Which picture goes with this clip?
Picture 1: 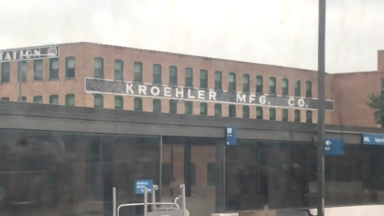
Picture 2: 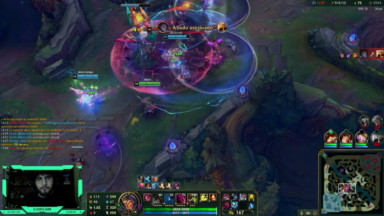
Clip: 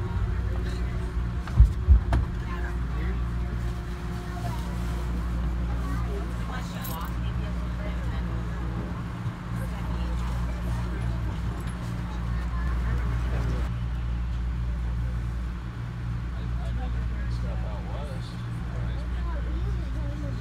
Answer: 1